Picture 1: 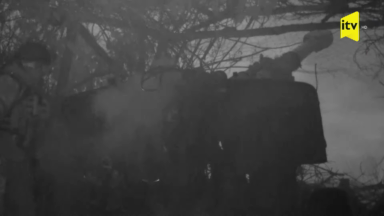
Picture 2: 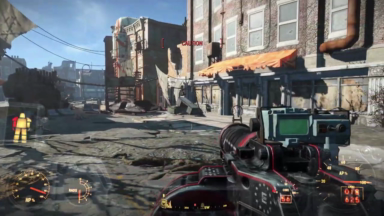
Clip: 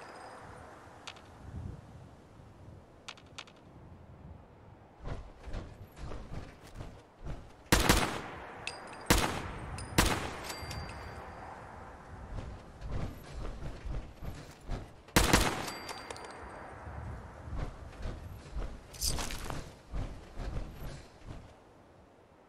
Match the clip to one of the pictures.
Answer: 2